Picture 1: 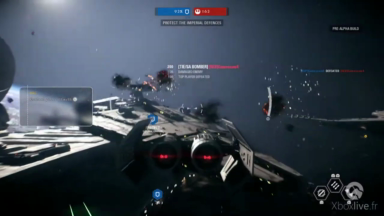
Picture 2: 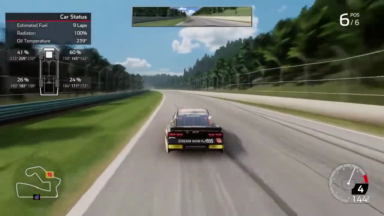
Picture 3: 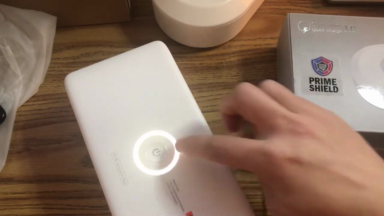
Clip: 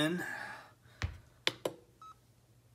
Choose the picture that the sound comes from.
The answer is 3